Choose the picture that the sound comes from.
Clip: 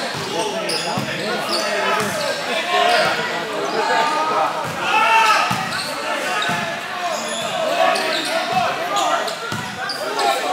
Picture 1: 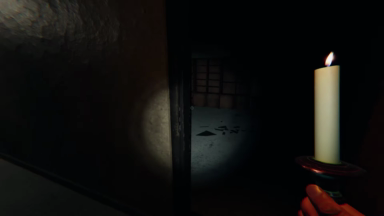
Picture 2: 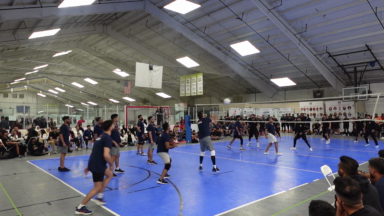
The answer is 2